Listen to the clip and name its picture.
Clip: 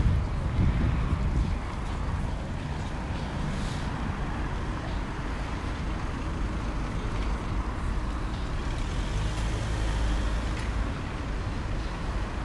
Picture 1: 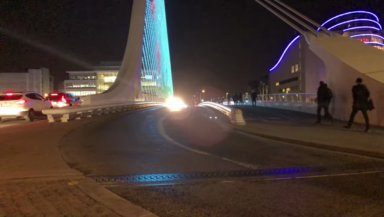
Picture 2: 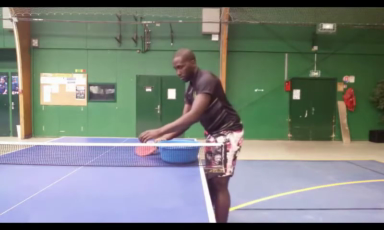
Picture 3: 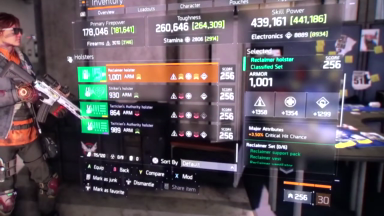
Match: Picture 1